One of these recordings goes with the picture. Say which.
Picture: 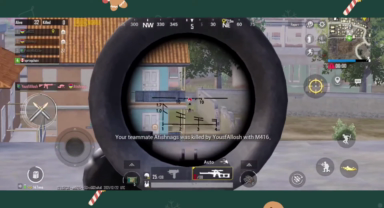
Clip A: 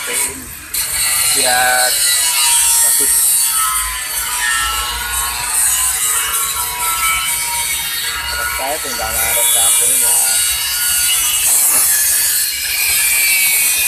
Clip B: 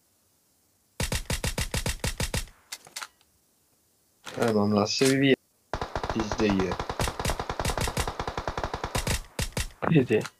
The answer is B